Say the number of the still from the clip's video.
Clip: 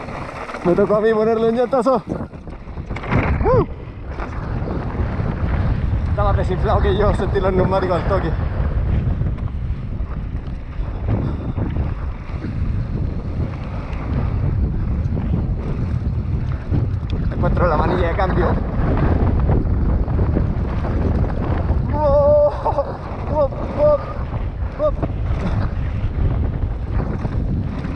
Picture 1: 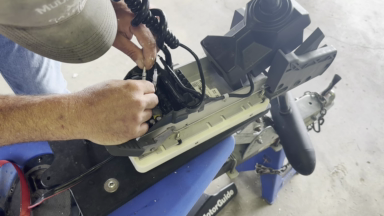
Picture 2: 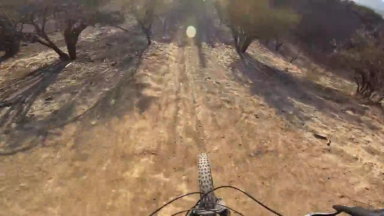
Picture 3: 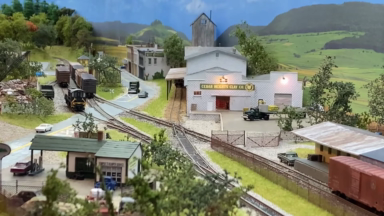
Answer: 2